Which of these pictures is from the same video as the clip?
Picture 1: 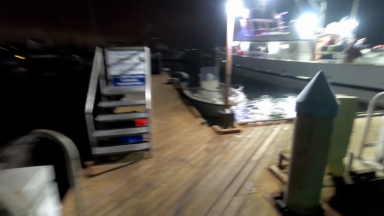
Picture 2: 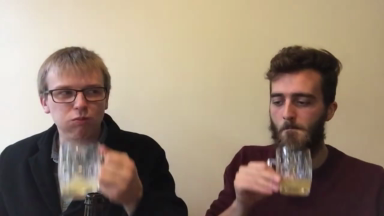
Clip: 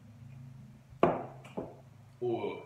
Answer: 2